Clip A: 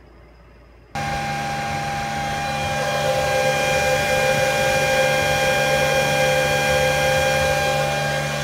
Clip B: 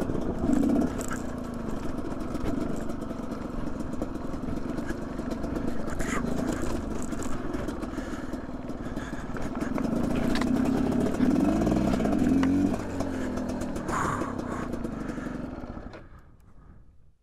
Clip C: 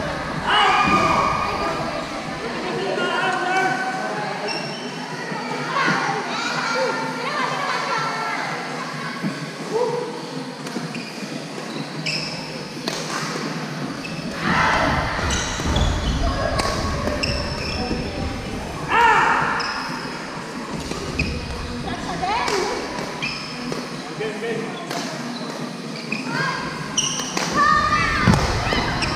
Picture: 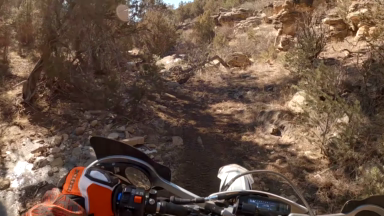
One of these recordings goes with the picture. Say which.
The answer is B